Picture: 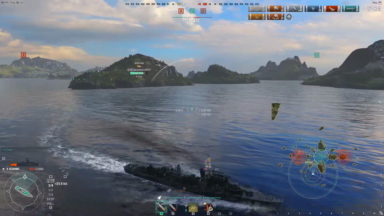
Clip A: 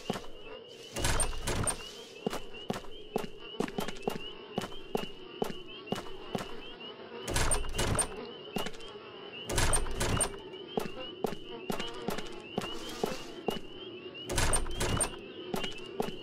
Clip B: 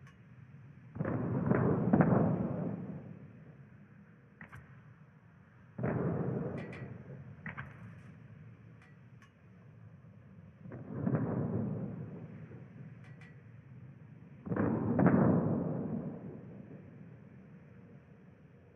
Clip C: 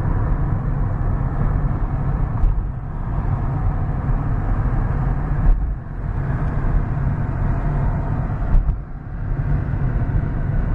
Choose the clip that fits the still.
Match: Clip B